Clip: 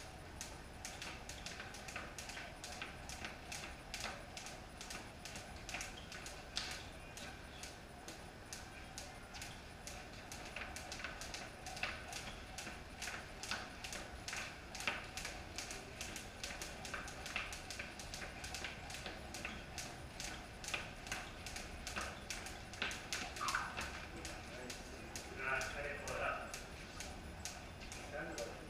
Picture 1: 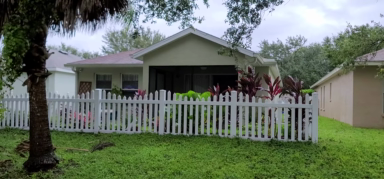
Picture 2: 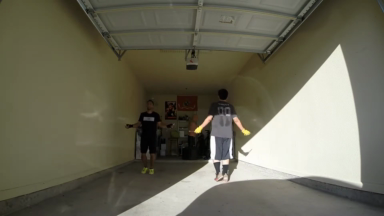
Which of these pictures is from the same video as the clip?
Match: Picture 2